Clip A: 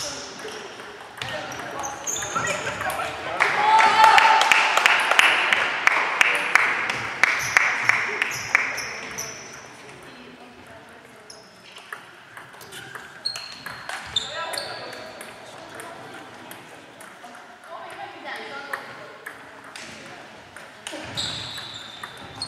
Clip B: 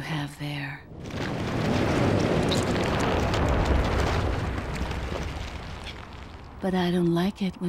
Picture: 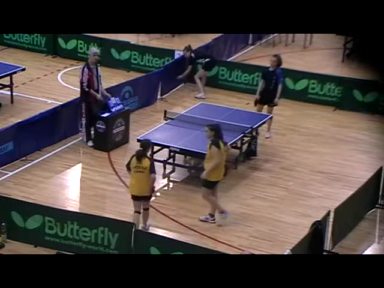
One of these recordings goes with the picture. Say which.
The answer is A